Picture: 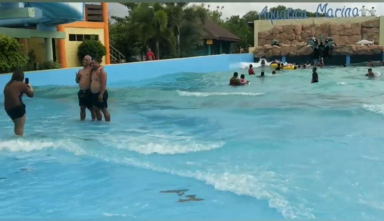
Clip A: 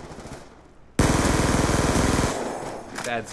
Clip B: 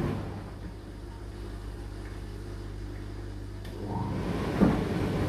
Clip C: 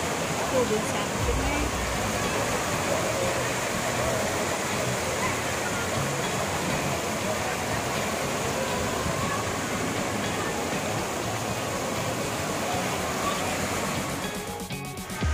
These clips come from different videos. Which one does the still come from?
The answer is C